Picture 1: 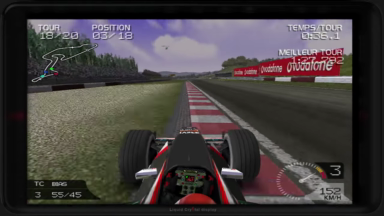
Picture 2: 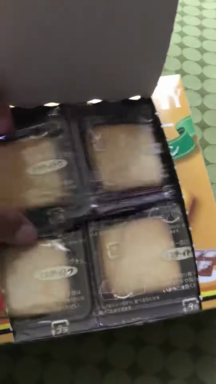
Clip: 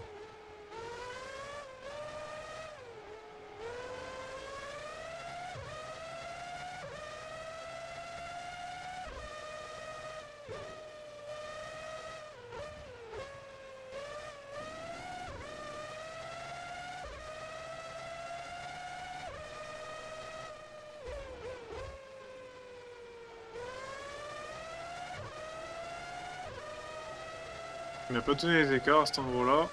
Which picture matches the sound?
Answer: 1